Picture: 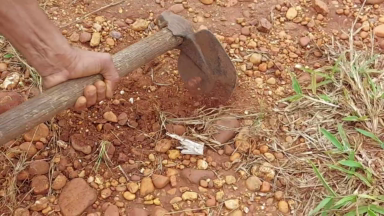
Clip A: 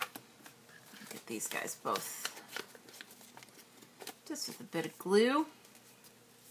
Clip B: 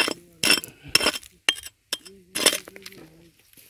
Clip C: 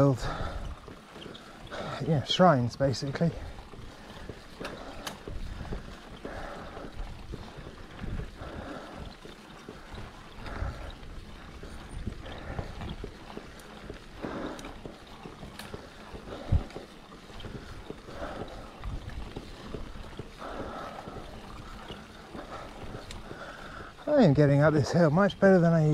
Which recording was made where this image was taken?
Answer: B